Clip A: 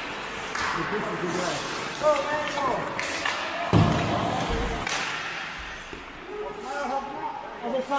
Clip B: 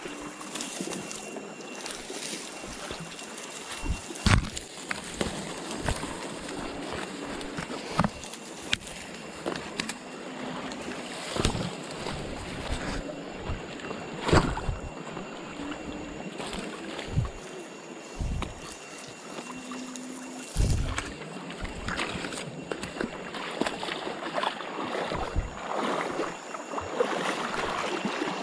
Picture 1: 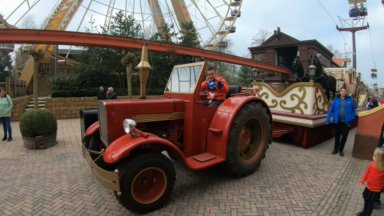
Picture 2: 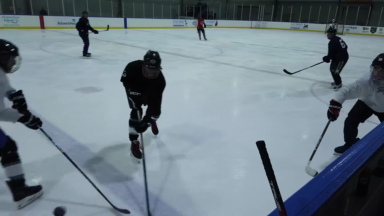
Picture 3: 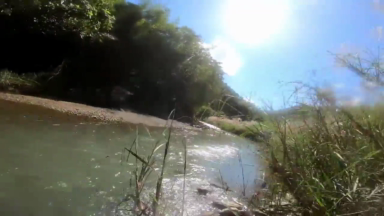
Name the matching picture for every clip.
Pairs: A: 2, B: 3